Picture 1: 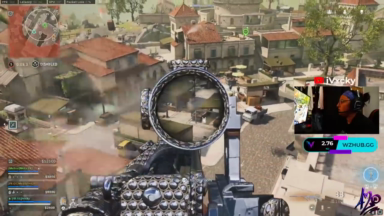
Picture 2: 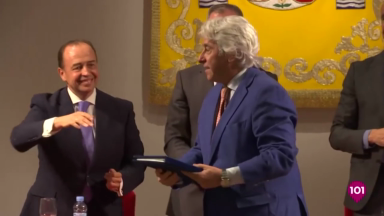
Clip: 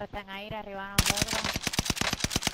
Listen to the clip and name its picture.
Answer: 1